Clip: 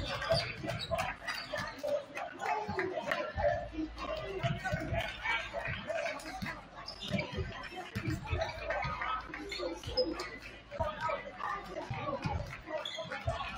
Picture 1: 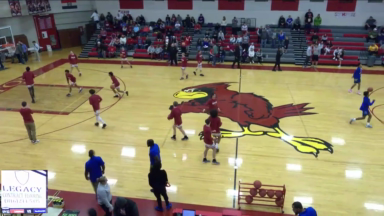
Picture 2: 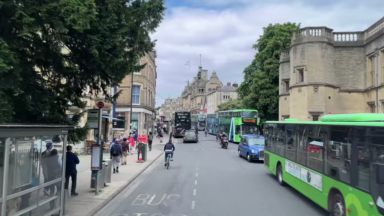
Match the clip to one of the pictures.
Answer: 1